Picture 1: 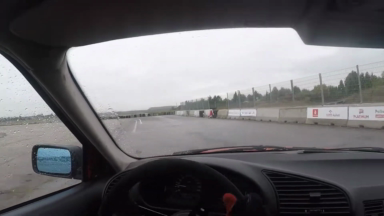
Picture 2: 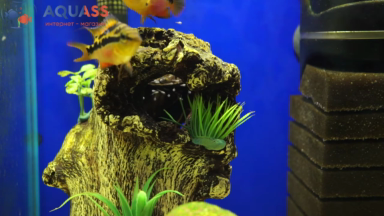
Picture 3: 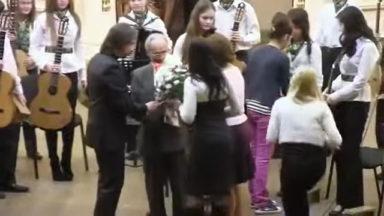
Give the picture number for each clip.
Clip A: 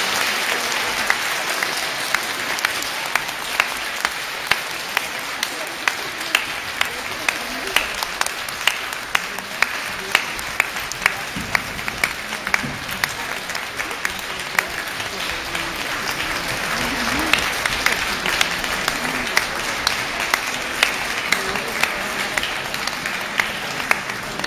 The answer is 3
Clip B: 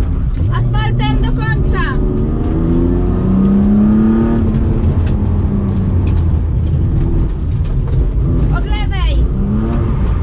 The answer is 1